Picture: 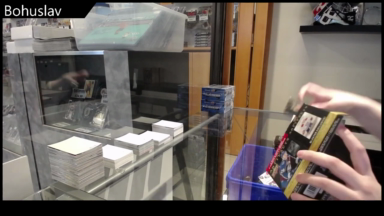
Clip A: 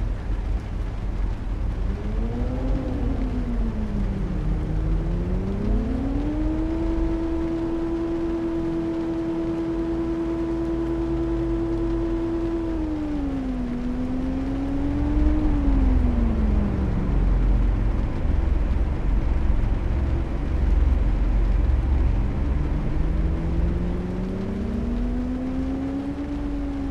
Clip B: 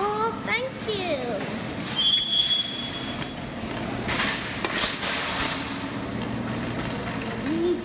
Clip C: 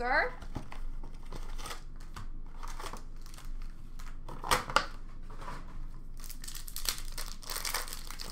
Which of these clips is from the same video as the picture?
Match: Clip C